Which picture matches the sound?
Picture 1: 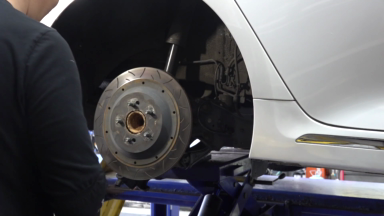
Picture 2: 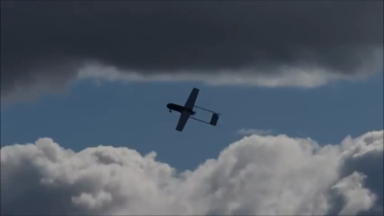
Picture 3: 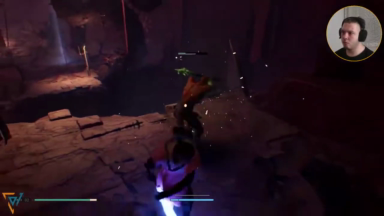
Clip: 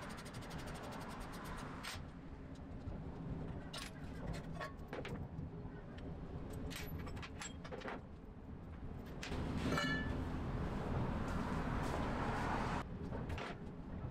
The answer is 1